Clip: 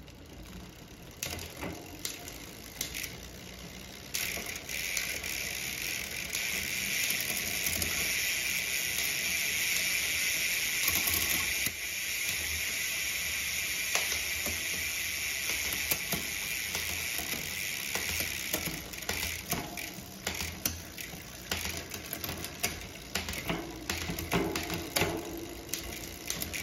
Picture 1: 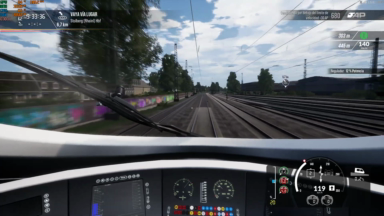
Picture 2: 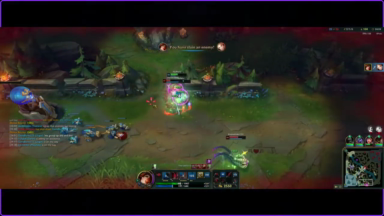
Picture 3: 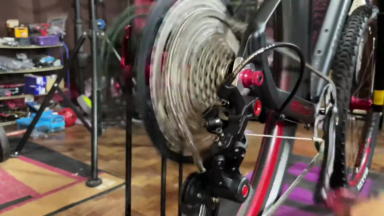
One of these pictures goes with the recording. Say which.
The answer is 3